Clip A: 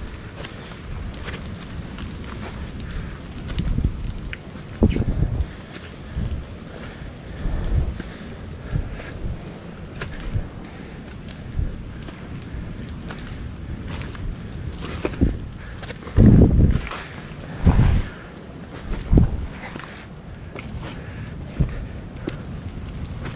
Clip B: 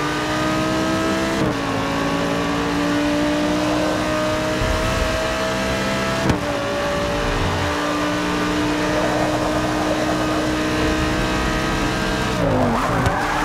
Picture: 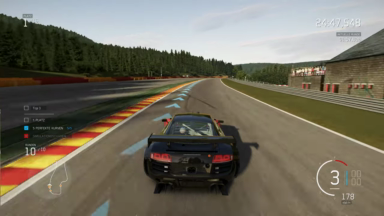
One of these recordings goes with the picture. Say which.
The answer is B